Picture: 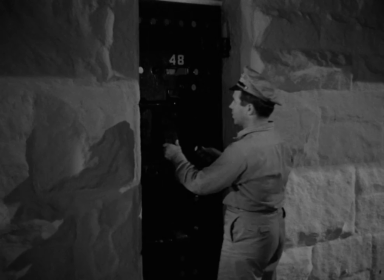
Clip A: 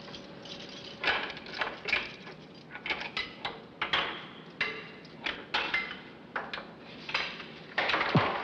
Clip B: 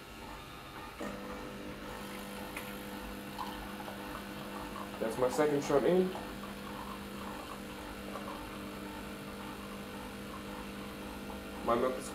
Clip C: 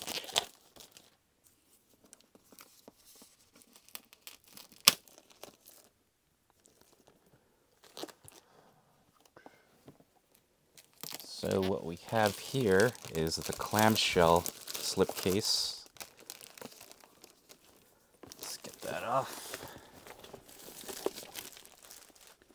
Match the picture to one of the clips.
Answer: A